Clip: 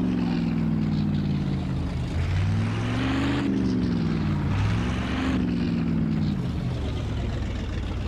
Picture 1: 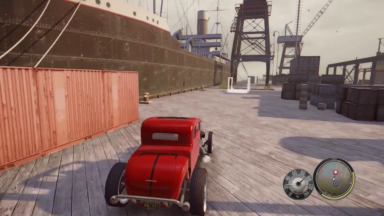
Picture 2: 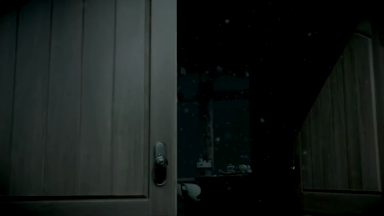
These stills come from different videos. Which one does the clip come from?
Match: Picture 1